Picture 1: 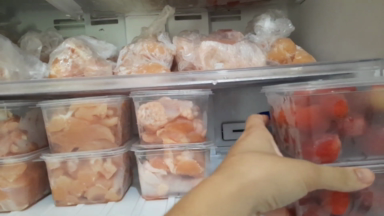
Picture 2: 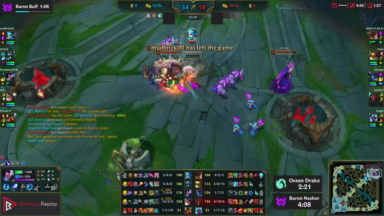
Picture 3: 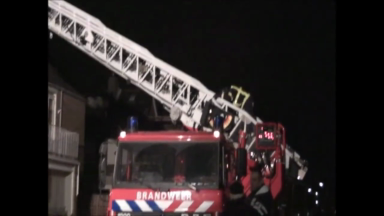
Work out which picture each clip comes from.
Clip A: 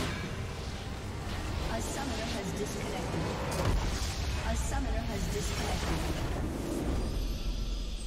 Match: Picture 2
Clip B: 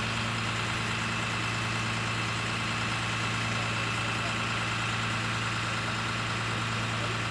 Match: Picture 3